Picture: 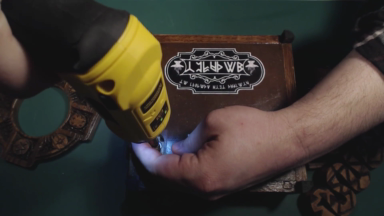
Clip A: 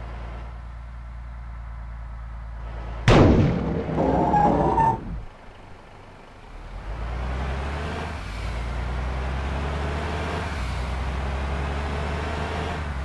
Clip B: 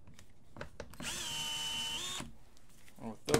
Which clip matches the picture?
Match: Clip B